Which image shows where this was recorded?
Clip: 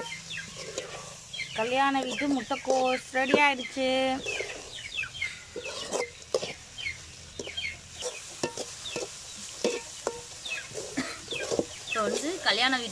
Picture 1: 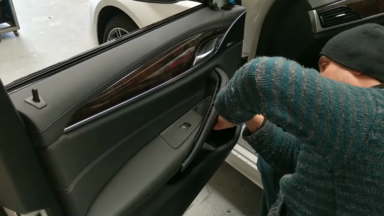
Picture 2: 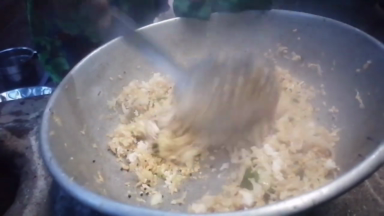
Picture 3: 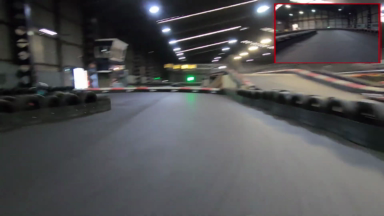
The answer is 2